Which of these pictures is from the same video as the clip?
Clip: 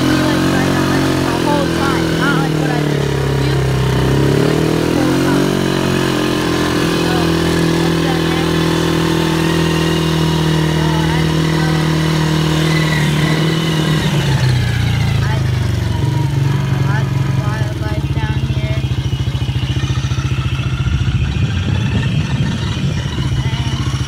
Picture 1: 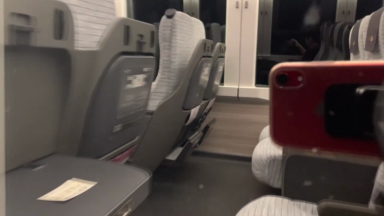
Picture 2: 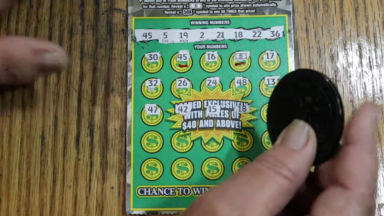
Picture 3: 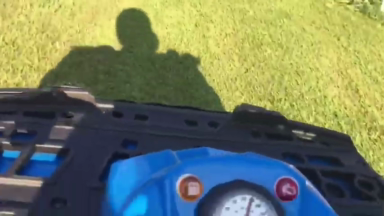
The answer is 3